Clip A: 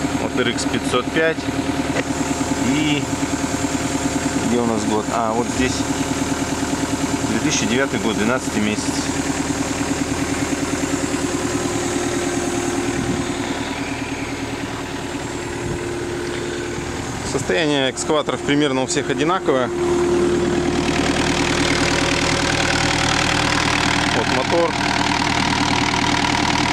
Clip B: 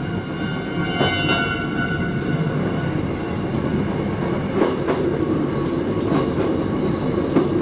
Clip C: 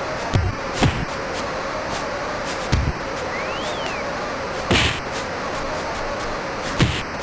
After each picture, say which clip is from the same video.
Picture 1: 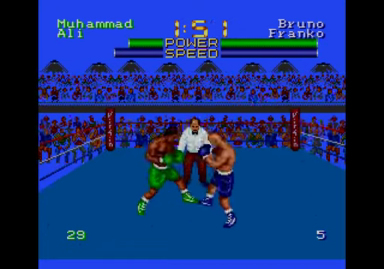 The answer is C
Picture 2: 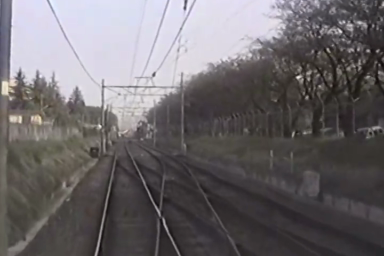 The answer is B